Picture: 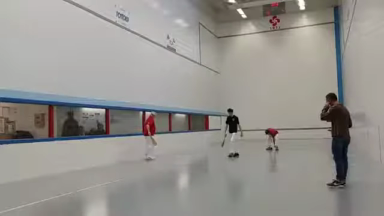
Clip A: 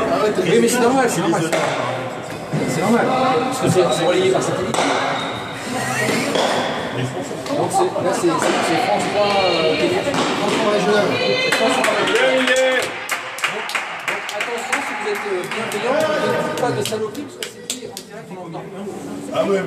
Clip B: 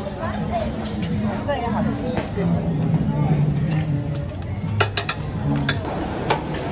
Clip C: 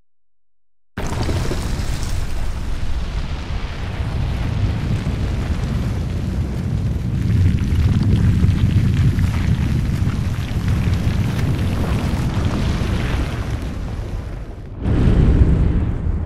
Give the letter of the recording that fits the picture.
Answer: A